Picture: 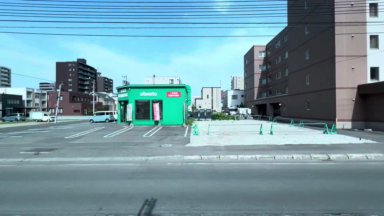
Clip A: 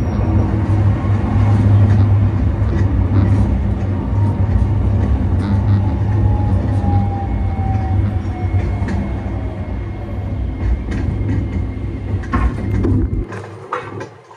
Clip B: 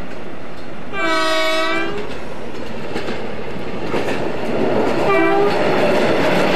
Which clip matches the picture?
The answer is A